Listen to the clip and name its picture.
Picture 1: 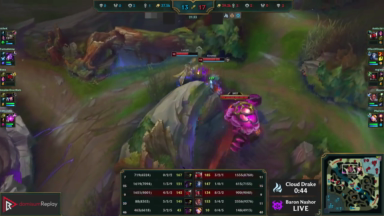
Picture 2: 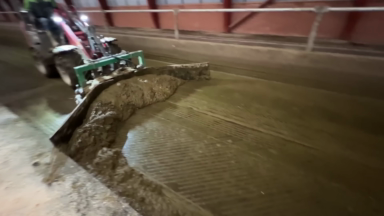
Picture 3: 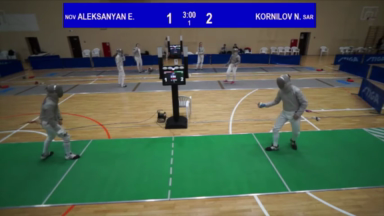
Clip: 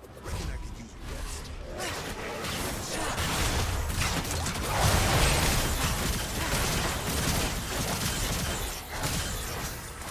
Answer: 1